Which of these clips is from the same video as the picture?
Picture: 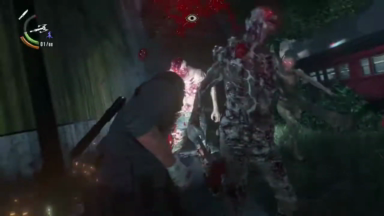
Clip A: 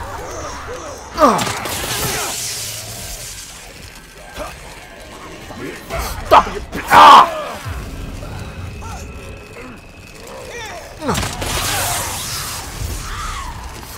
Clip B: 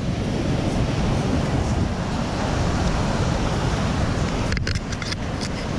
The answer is A